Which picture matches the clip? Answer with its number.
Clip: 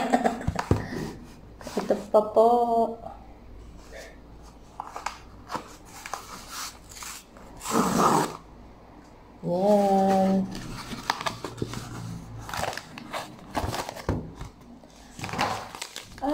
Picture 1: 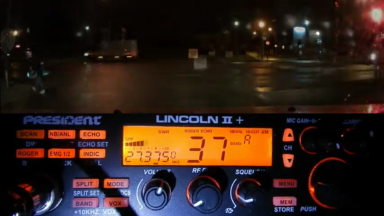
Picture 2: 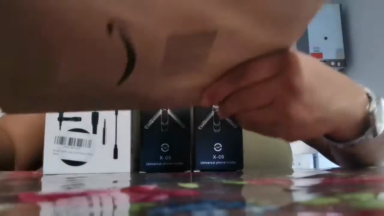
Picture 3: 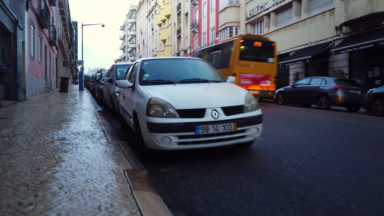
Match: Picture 2